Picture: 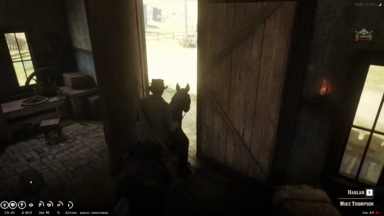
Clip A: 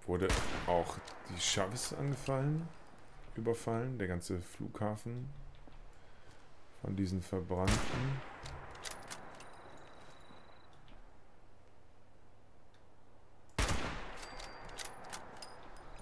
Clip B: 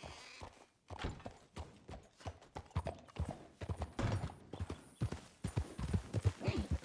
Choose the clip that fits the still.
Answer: B